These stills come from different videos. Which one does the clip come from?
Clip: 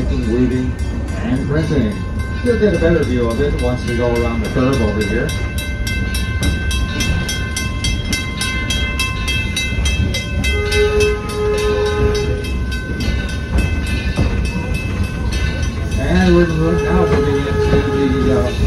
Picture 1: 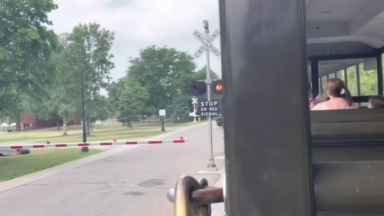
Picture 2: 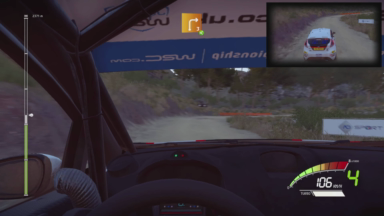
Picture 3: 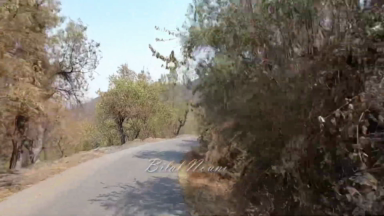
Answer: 1